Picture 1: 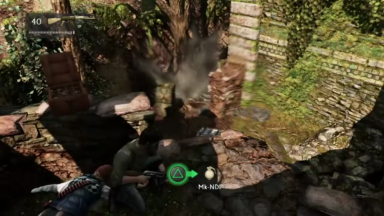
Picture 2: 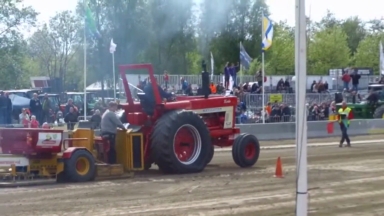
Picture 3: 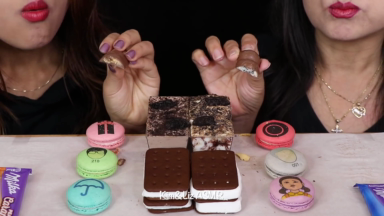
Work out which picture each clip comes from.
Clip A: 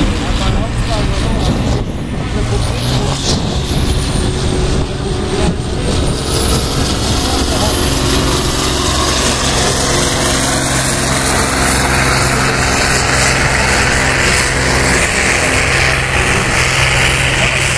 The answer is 2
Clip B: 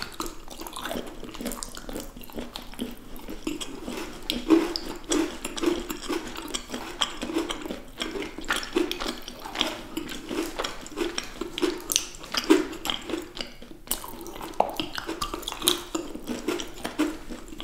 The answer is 3